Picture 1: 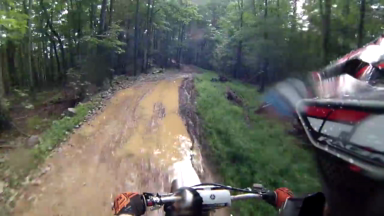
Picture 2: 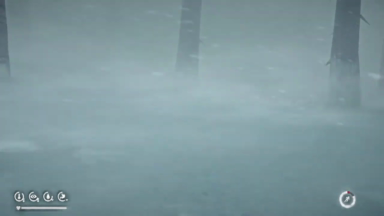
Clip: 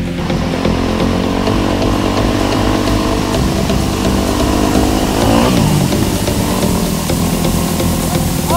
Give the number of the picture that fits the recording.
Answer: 1